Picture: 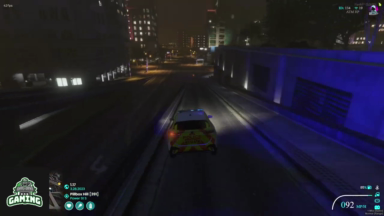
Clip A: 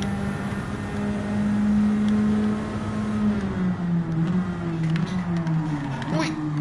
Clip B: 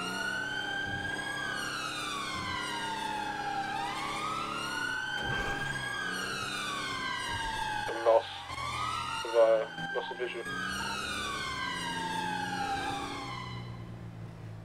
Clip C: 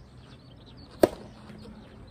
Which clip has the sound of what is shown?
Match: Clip B